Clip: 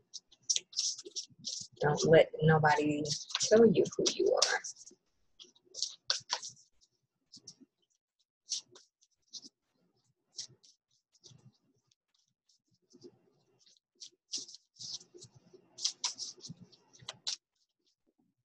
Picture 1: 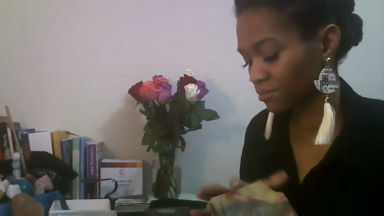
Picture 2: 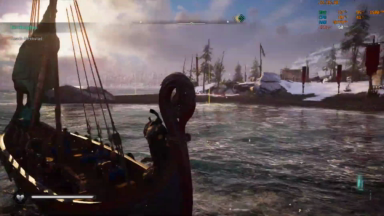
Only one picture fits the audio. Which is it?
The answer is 1